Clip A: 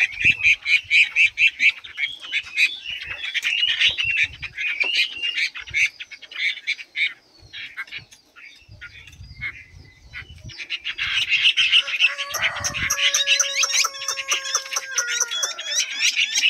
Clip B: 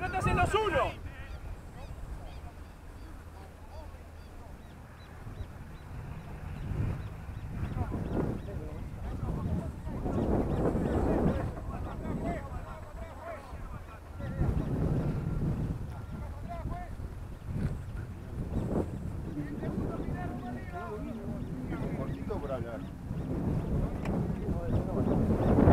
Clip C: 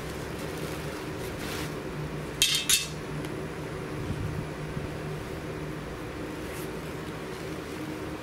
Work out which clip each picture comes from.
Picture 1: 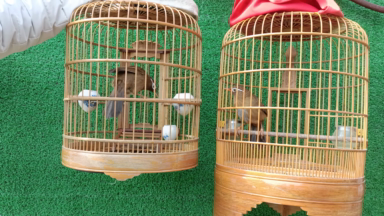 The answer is A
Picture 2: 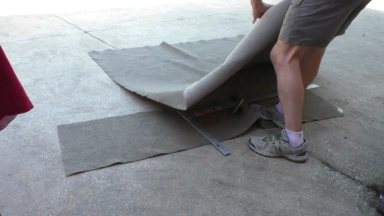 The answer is C